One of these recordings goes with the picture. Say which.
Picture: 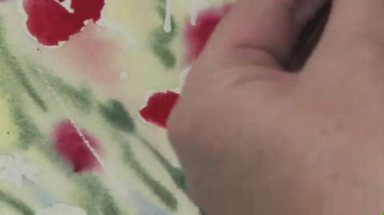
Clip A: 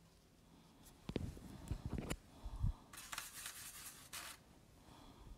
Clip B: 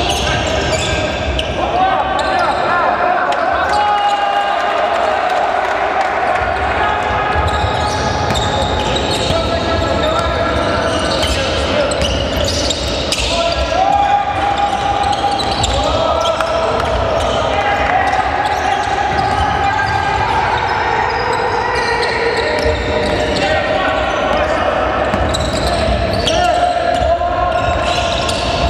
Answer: A